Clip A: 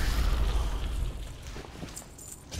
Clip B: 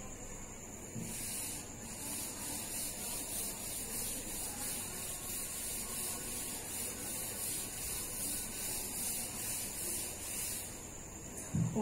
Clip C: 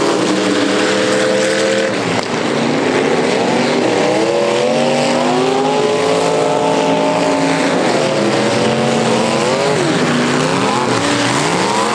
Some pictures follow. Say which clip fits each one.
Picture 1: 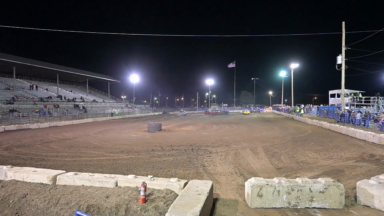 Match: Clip C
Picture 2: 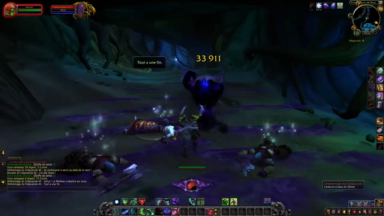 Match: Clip A